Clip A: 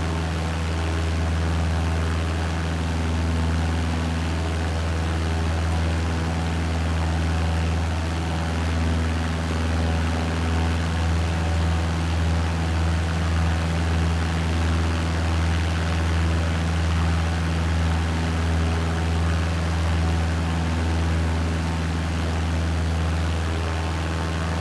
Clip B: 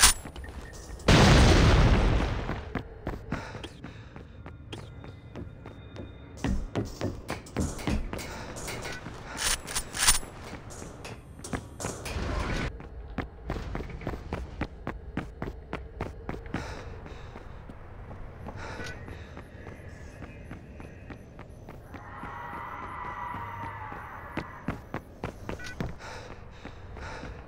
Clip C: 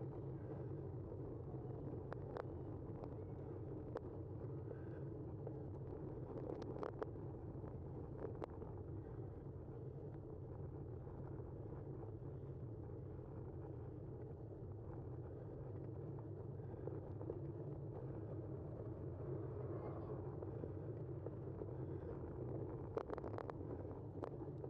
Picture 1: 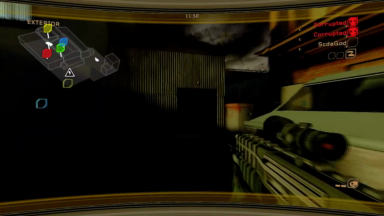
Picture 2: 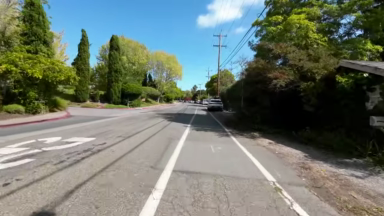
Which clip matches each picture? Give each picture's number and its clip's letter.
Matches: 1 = B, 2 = C